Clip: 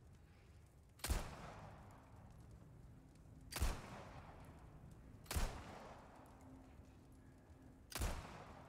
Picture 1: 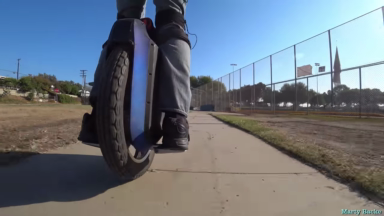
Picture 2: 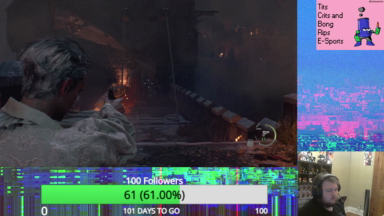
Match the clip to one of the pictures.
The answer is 2